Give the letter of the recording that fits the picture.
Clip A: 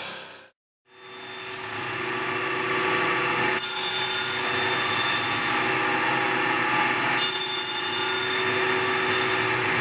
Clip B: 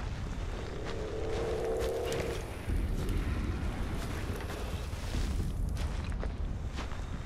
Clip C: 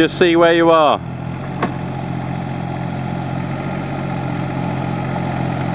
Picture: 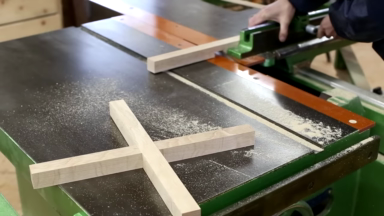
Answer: A